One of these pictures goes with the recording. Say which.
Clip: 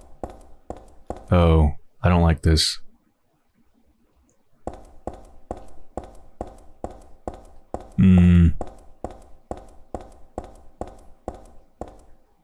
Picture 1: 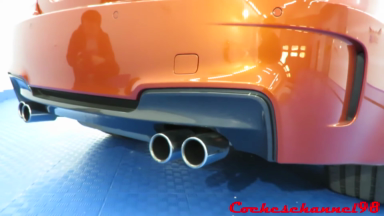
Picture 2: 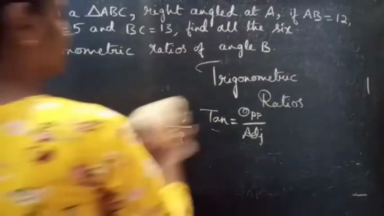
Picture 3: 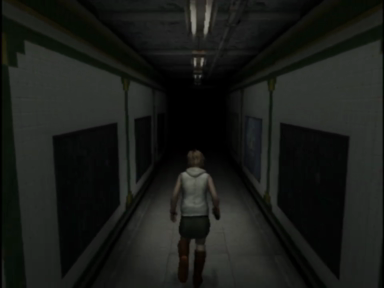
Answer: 3